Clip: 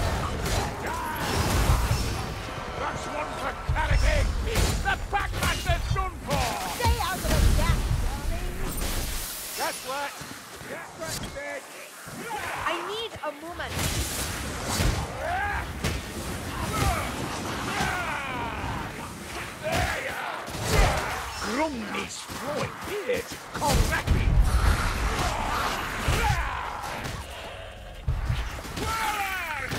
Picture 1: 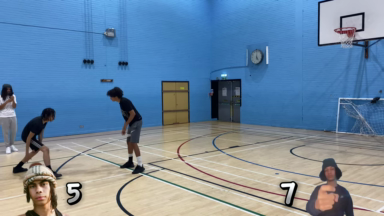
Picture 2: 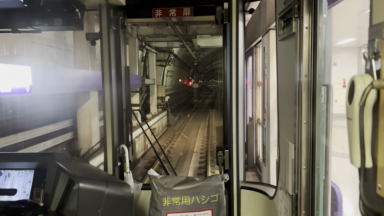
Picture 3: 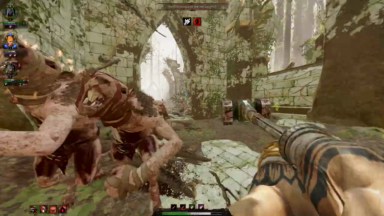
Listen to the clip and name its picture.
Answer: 3